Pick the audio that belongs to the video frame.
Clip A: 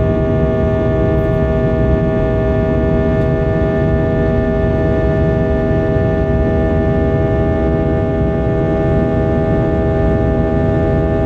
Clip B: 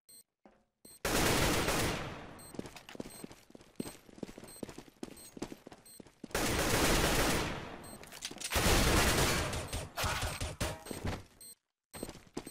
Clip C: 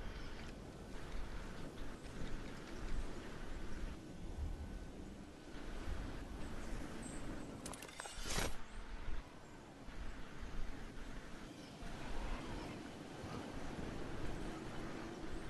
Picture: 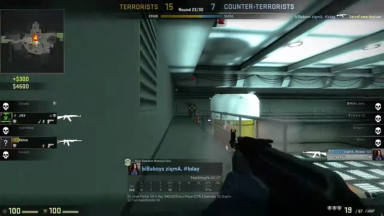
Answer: B